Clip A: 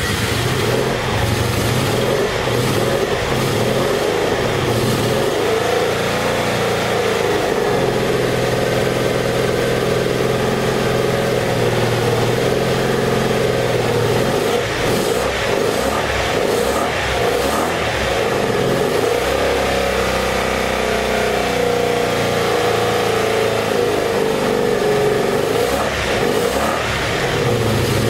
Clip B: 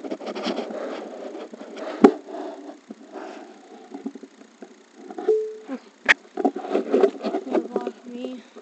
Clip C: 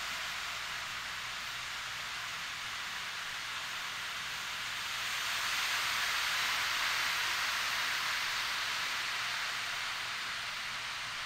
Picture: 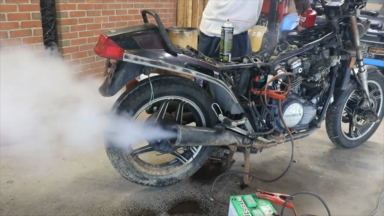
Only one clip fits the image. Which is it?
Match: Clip A